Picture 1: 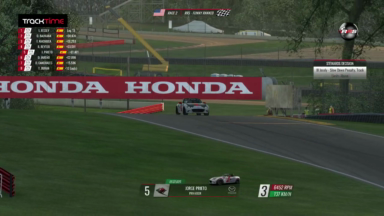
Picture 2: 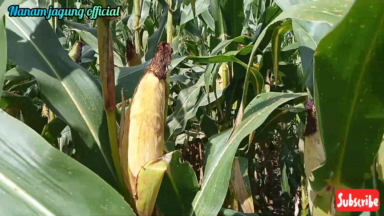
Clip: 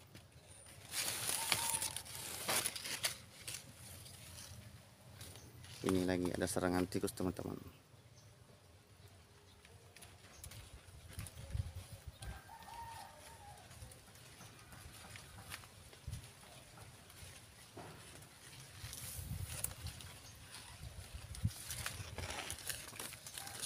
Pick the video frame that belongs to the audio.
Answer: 2